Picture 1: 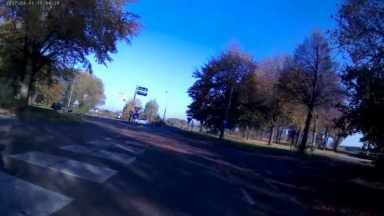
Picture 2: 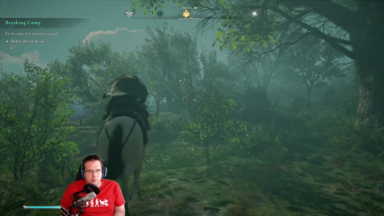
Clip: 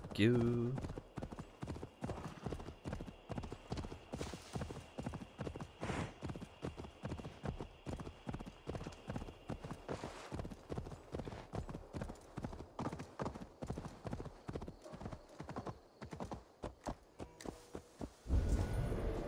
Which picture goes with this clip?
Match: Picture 2